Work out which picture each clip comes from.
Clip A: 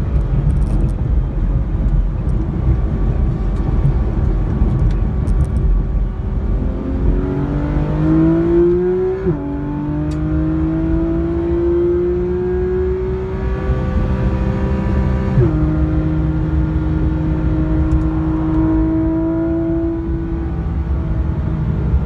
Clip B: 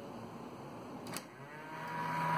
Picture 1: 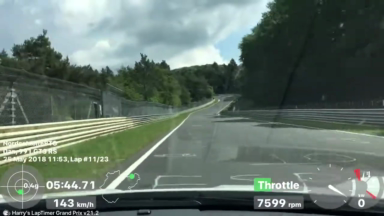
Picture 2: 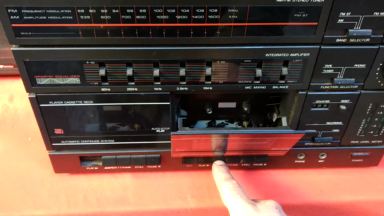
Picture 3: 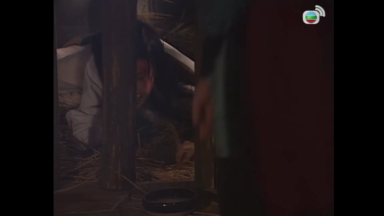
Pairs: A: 1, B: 2